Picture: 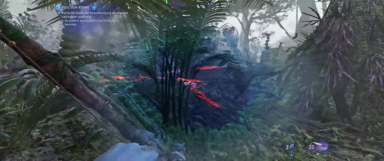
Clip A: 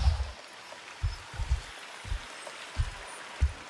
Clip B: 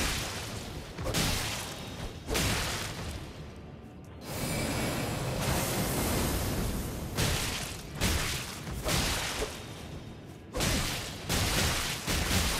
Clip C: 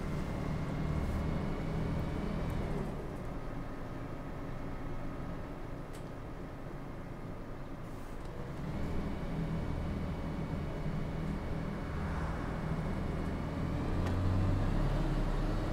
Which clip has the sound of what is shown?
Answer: A